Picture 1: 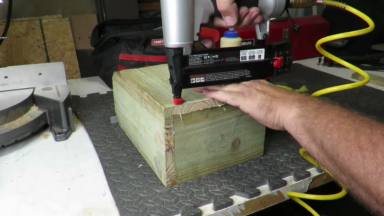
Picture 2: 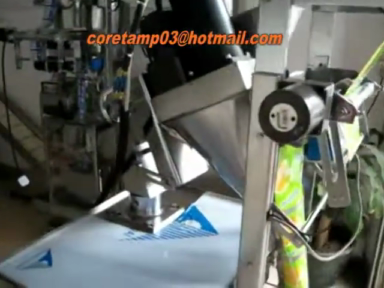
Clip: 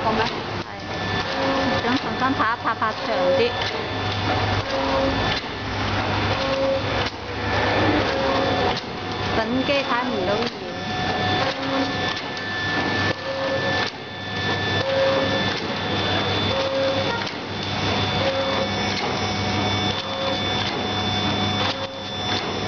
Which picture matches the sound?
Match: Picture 2